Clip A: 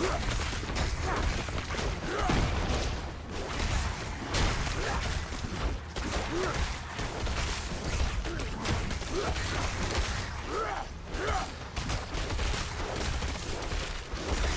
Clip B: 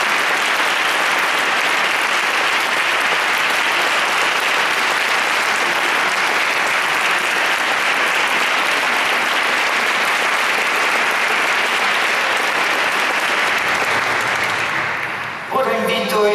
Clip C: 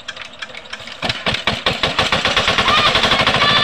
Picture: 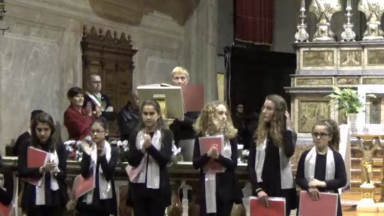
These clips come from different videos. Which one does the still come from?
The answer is B